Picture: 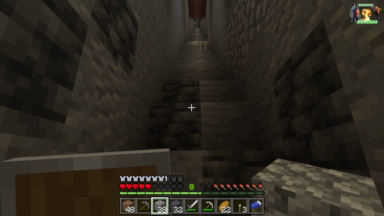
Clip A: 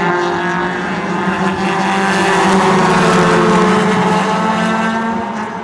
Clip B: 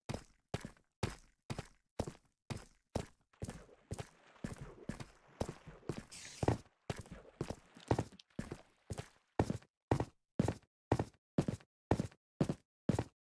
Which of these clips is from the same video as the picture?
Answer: B